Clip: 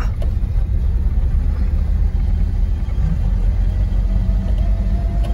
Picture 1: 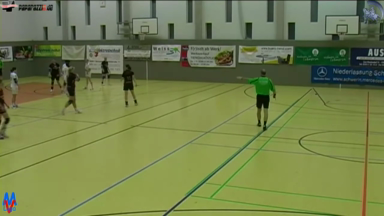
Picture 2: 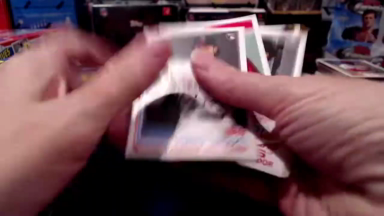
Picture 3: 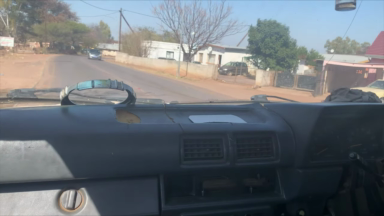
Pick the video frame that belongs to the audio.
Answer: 3